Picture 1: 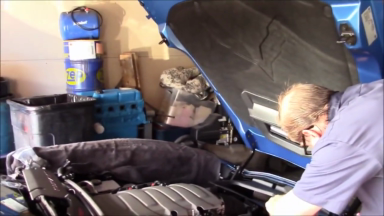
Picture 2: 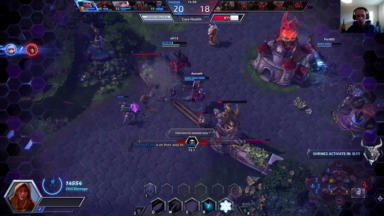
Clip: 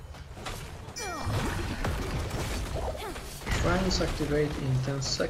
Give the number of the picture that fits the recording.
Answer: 2